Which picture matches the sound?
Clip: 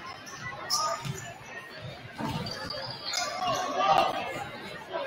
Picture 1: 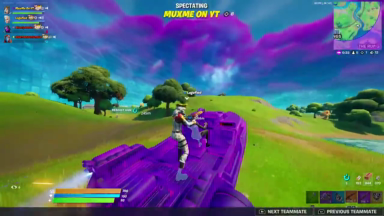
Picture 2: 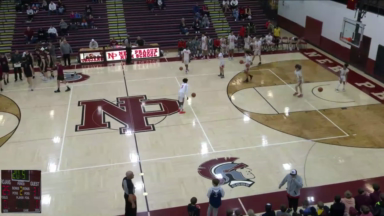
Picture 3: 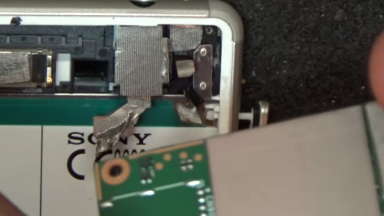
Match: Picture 2